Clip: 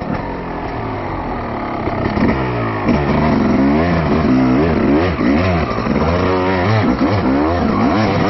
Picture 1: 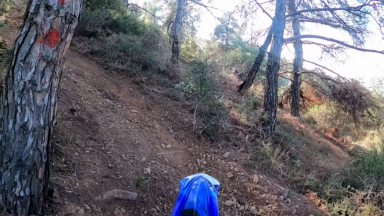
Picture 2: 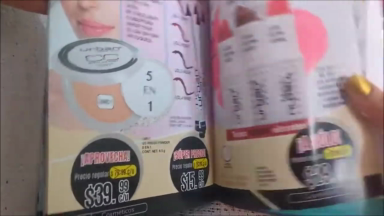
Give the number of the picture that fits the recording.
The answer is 1